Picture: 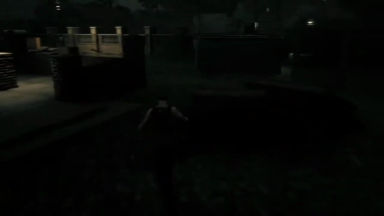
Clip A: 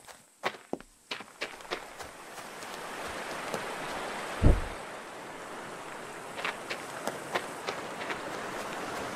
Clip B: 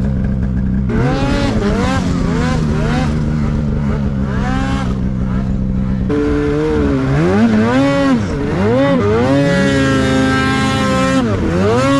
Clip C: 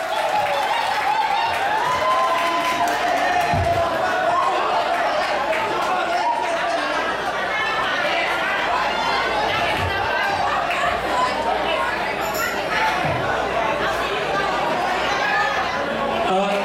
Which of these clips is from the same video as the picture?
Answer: A